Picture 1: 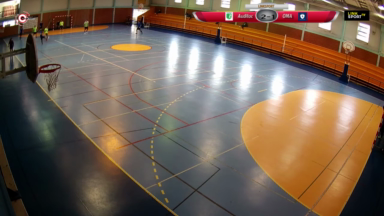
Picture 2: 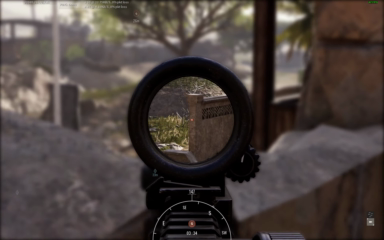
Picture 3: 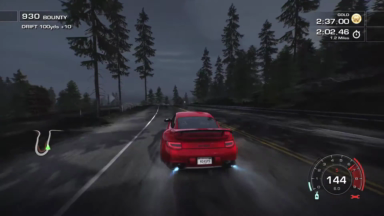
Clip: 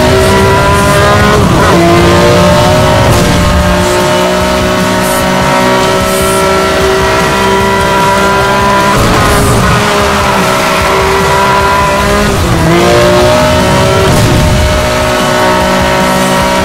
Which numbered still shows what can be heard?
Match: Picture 3